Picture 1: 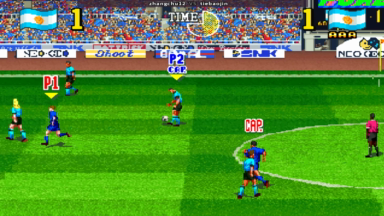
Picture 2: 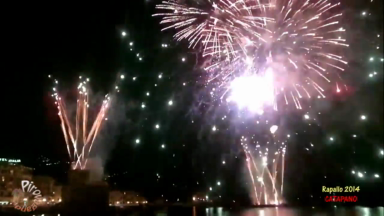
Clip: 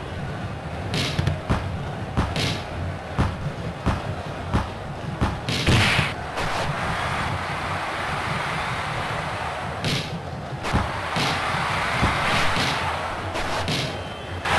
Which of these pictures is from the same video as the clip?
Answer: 1